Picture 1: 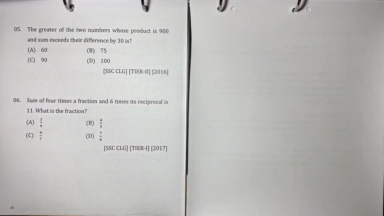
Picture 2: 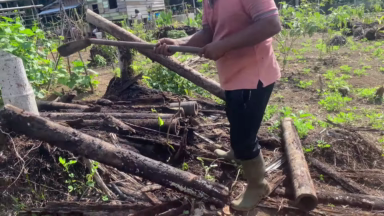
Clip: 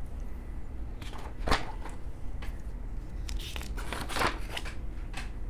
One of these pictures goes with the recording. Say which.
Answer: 1